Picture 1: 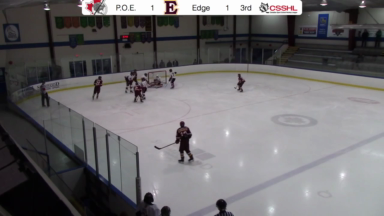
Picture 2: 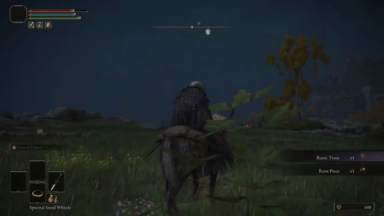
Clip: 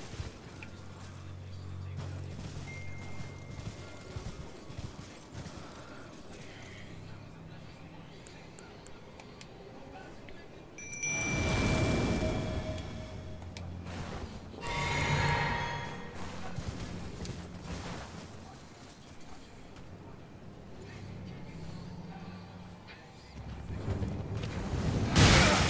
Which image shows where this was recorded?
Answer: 2